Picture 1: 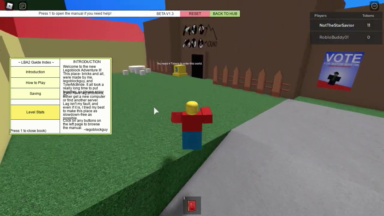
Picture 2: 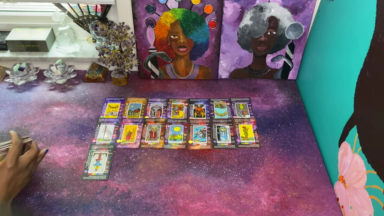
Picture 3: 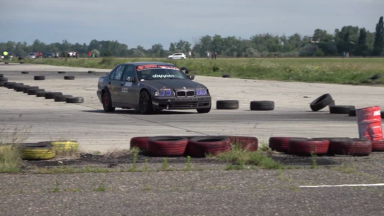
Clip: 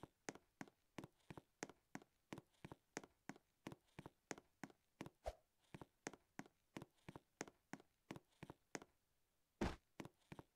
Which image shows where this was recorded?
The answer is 1